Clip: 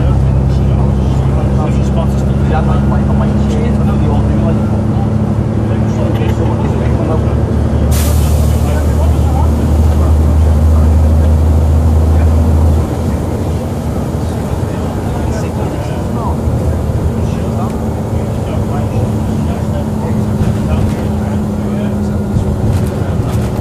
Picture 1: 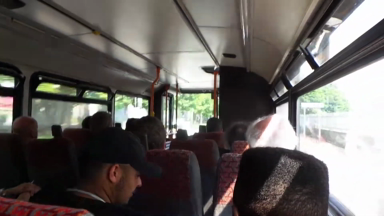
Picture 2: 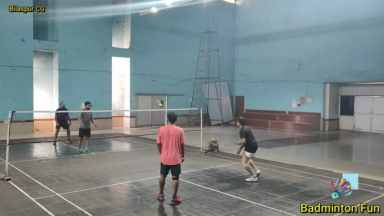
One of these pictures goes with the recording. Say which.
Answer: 1